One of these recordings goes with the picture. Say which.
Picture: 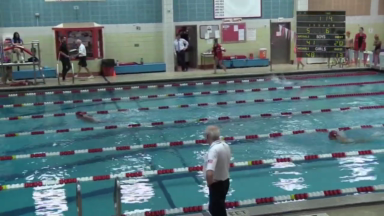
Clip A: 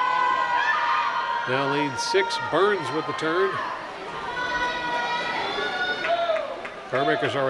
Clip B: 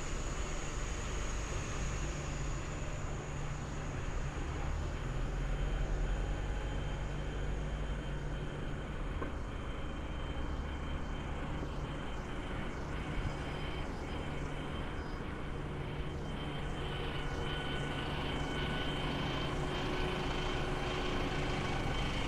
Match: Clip A